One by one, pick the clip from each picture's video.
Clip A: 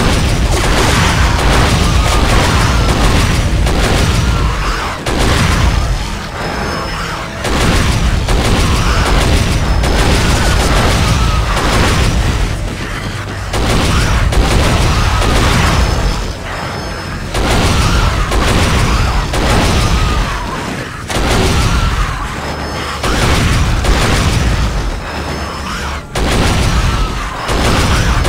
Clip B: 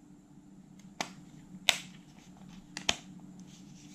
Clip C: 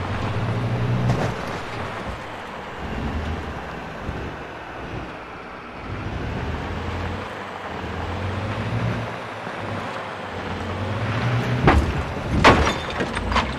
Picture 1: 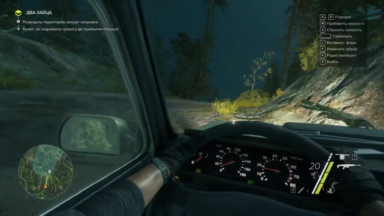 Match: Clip C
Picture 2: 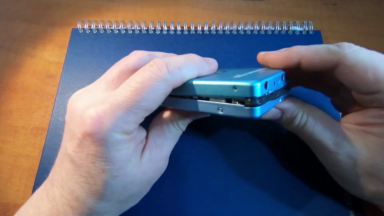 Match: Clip B